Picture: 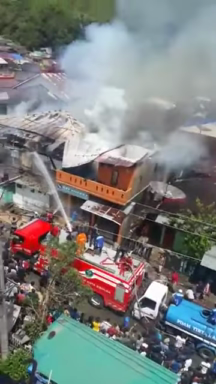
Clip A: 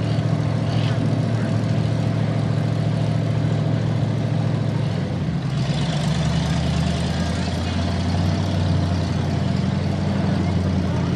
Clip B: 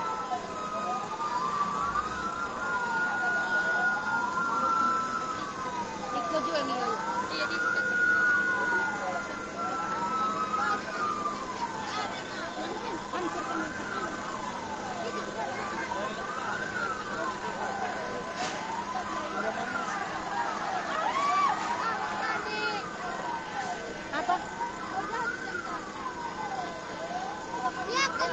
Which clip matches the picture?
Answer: B